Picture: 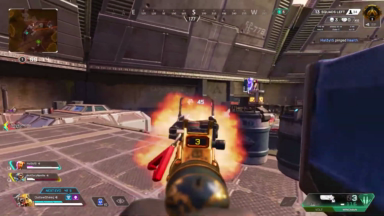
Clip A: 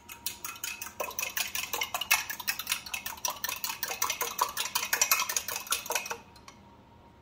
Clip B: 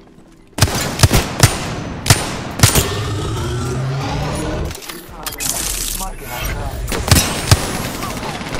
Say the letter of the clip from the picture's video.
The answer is B